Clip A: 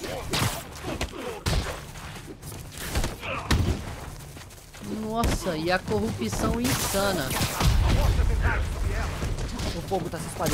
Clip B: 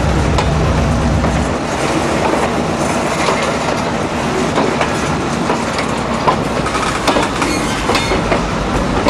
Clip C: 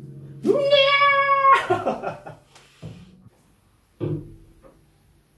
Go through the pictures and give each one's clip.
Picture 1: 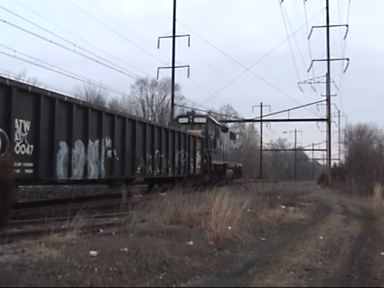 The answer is B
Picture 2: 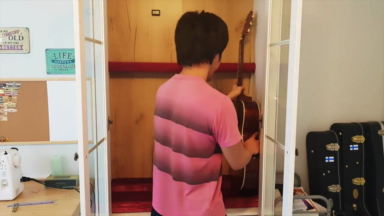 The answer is C